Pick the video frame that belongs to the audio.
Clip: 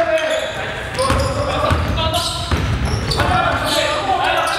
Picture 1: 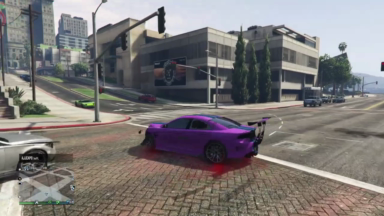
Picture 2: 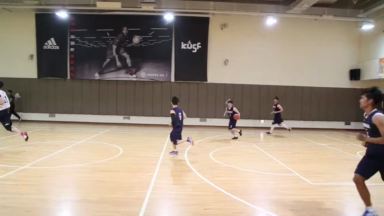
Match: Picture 2